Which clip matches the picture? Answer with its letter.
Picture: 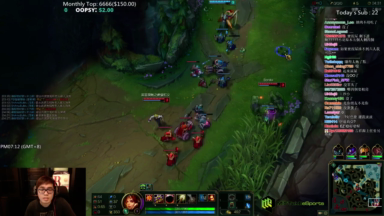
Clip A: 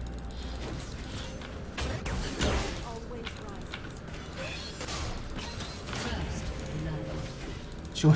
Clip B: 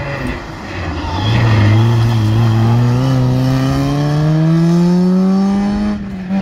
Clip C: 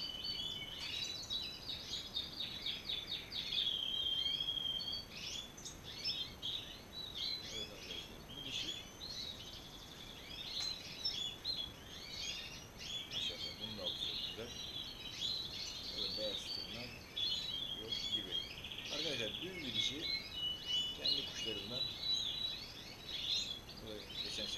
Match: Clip A